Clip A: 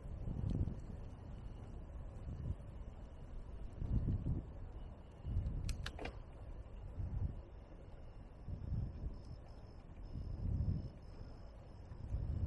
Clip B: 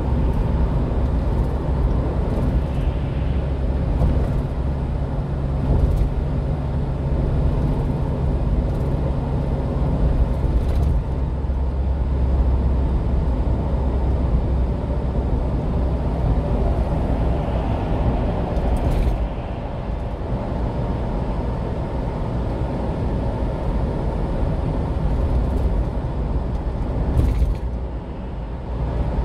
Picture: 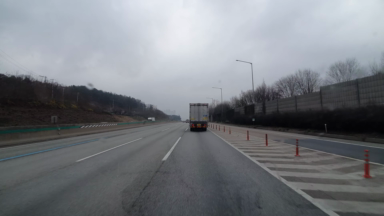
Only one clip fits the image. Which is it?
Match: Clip B